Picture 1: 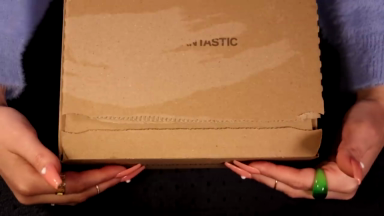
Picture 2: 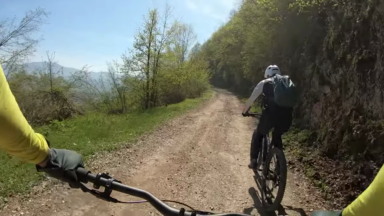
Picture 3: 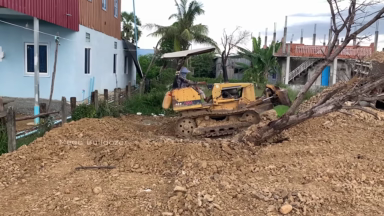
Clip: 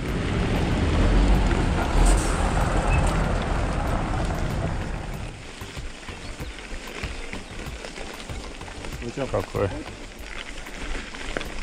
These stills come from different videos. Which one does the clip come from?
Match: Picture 2